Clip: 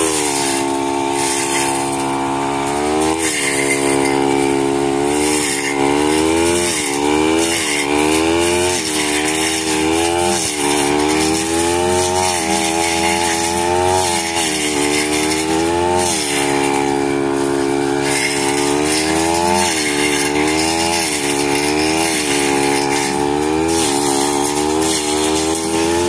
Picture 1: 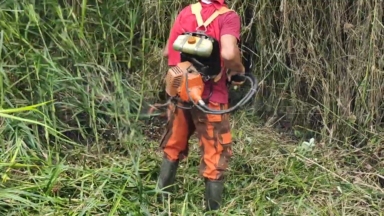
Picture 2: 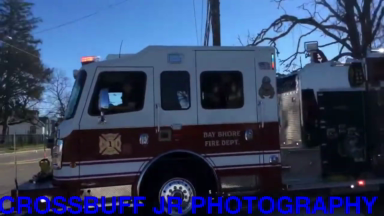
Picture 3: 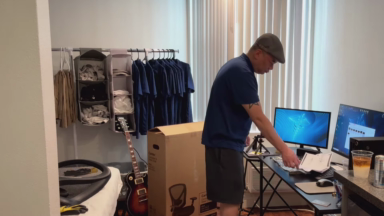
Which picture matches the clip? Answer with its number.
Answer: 1